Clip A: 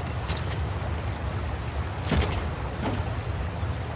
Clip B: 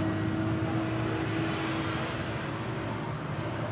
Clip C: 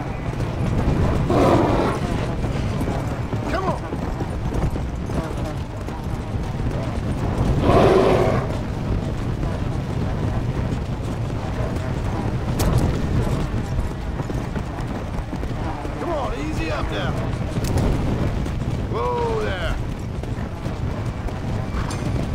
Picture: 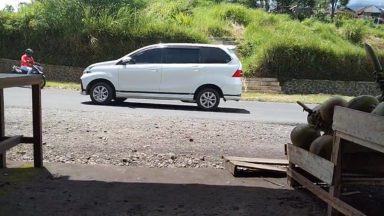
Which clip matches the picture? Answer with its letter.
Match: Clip B